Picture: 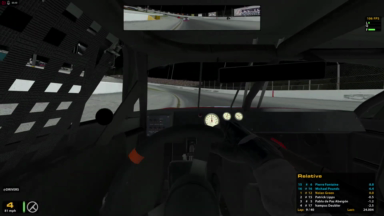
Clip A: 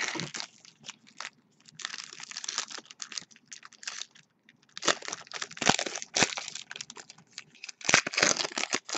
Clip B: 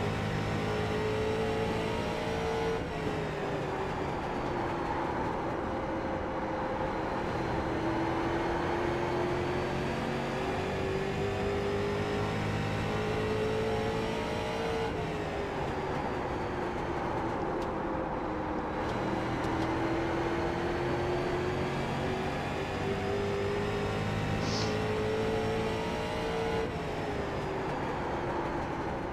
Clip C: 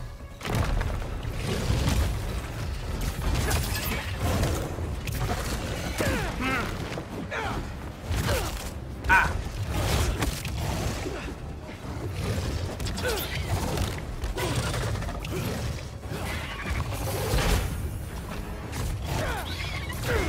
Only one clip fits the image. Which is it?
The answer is B